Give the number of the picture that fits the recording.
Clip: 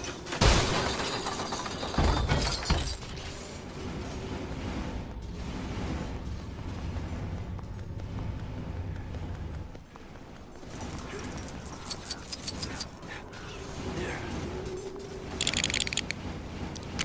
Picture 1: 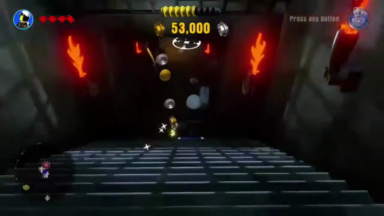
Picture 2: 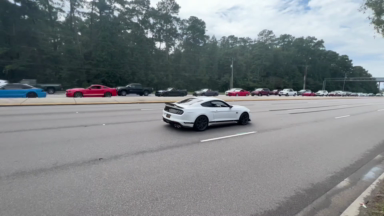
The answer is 1